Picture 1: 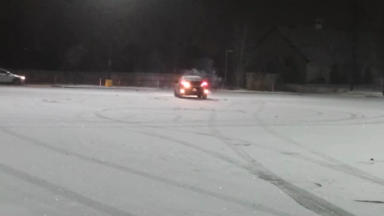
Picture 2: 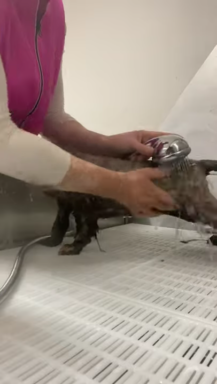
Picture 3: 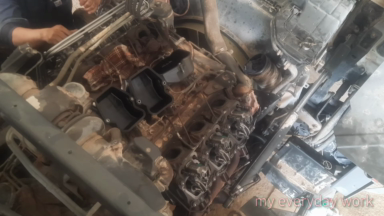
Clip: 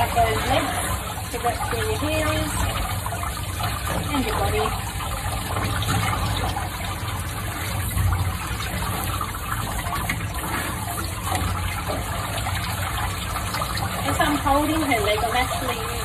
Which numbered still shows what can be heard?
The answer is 2